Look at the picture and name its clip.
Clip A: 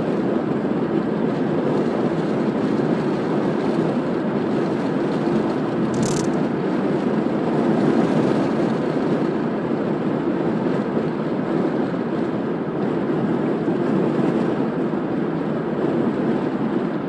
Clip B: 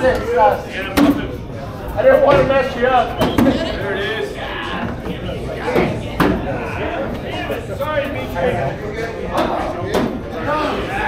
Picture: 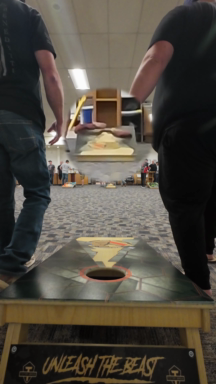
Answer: B